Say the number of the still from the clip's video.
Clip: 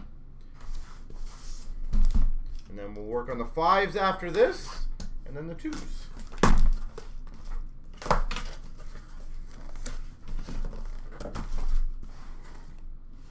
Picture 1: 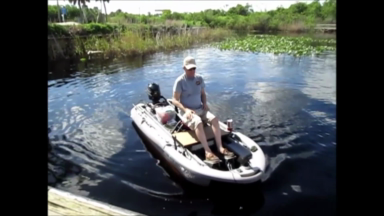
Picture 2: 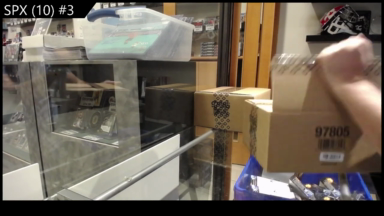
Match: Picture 2